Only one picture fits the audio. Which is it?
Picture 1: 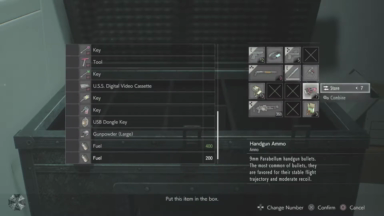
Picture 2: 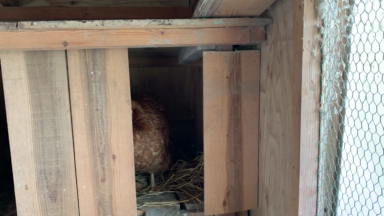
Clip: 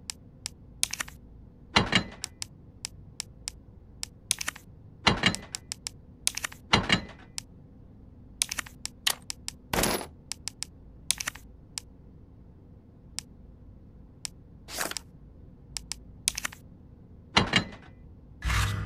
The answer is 1